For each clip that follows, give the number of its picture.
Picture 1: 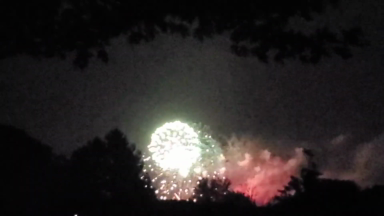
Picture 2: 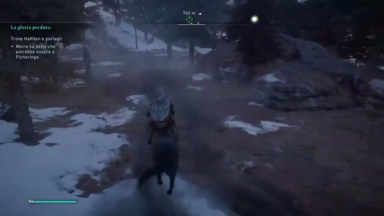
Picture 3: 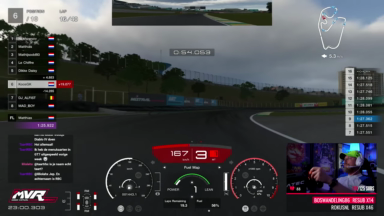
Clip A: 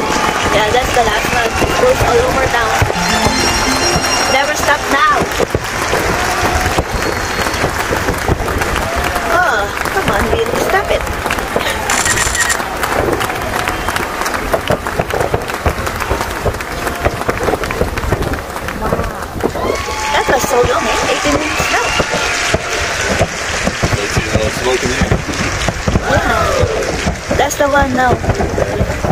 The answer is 1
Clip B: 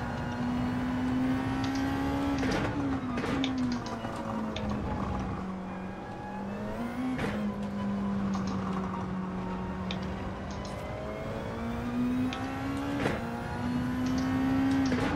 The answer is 3